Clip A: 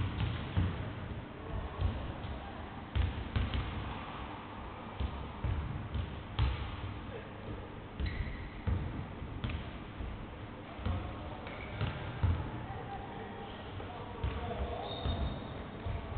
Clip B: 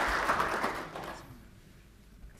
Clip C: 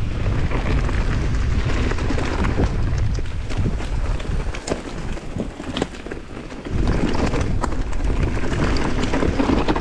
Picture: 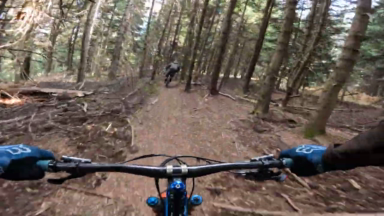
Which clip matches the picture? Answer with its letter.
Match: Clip C